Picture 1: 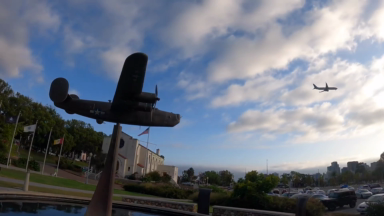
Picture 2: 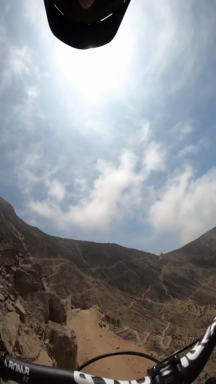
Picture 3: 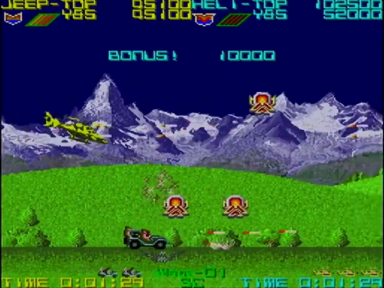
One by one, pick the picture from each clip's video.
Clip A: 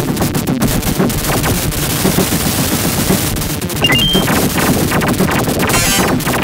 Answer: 3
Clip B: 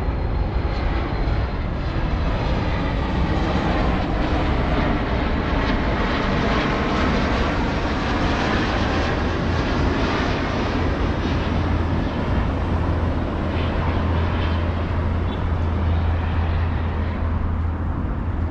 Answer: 1